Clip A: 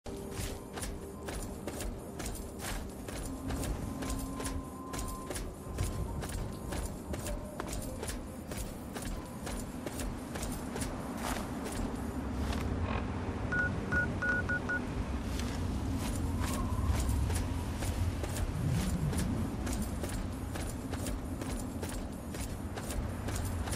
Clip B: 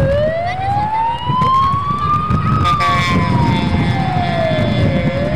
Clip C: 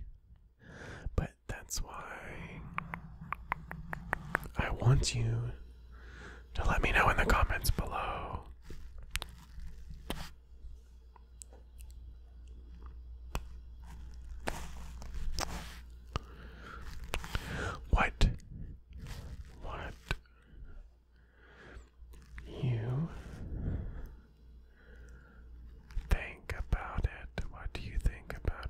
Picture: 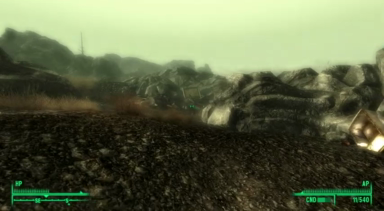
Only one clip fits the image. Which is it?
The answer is A